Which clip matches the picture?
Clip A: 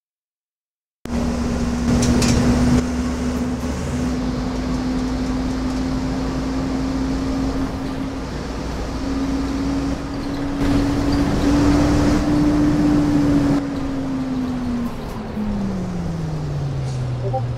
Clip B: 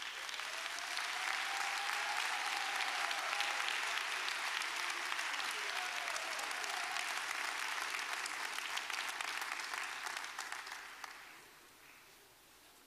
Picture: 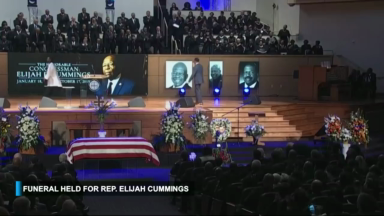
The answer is B